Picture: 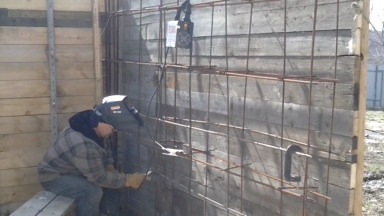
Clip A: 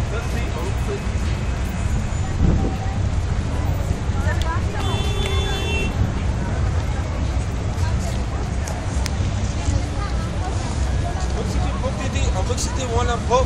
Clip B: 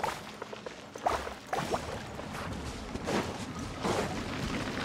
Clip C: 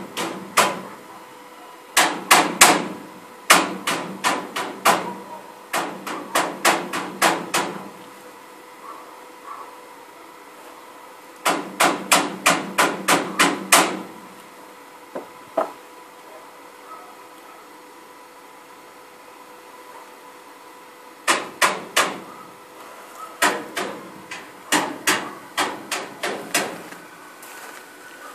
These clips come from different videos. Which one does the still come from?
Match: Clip C